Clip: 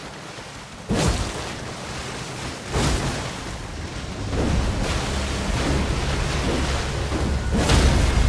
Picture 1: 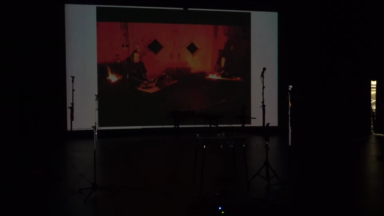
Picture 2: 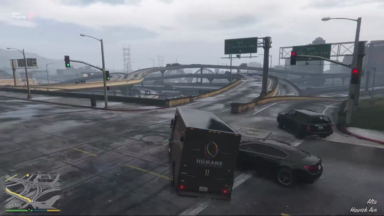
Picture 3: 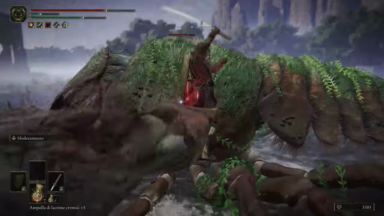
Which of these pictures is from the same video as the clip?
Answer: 3